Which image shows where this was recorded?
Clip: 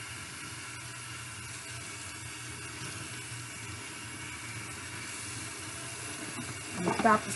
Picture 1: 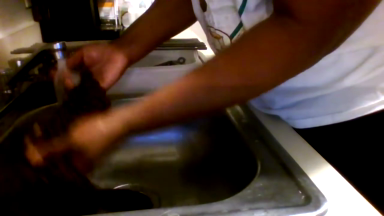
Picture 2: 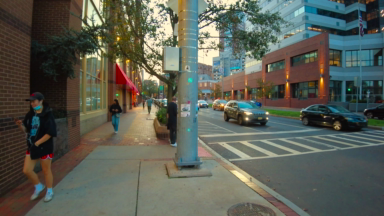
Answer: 1